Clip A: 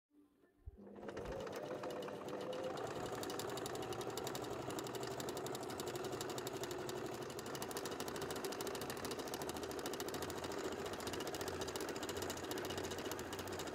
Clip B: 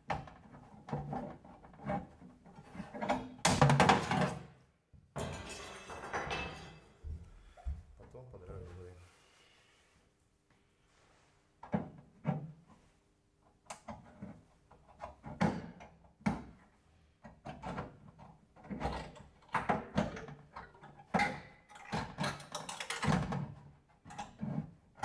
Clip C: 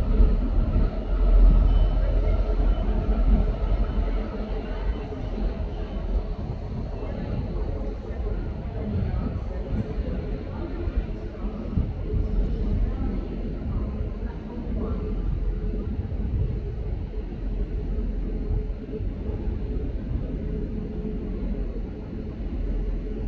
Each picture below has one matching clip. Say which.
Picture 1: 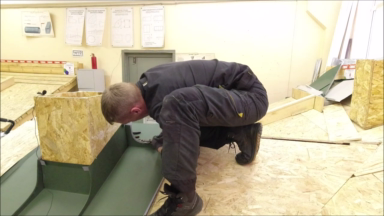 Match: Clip B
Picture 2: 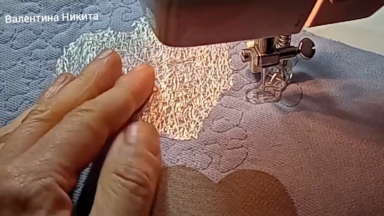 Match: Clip A